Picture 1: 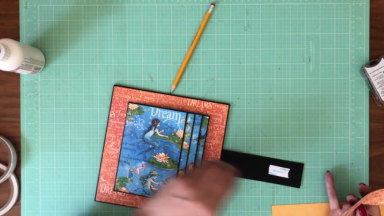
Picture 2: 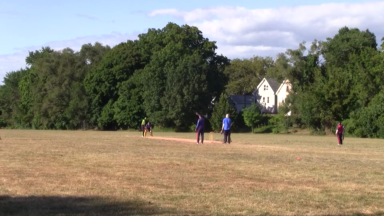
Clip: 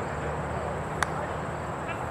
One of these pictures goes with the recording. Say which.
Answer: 2